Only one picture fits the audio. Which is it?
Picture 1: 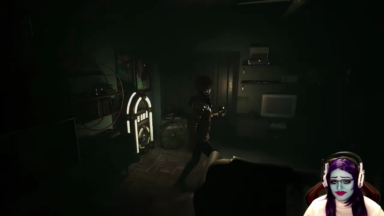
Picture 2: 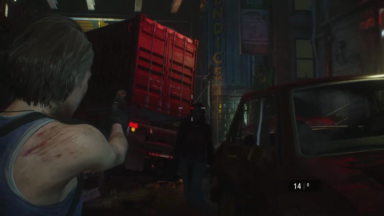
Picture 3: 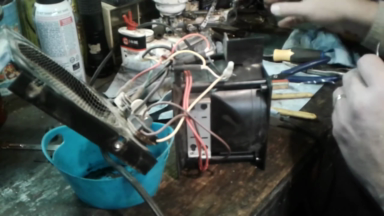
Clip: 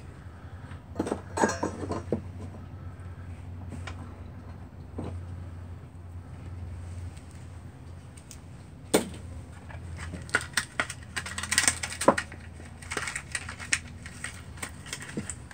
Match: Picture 3